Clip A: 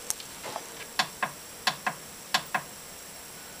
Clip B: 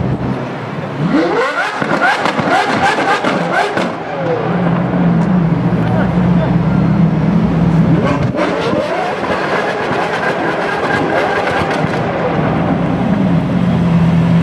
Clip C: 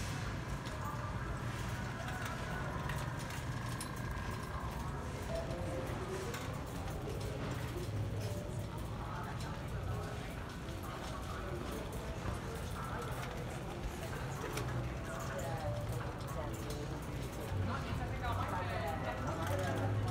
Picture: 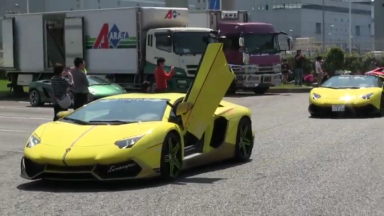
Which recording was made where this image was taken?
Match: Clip B